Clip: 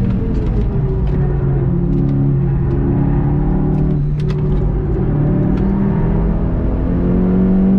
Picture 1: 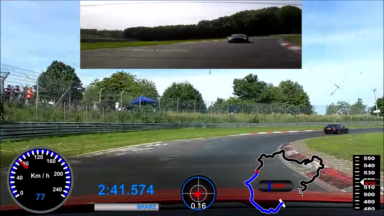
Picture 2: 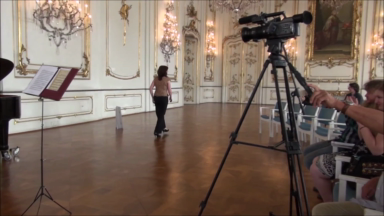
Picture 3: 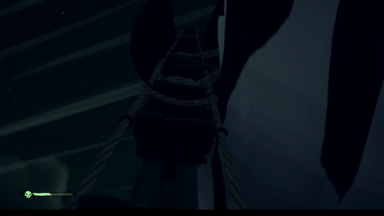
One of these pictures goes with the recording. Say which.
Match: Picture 1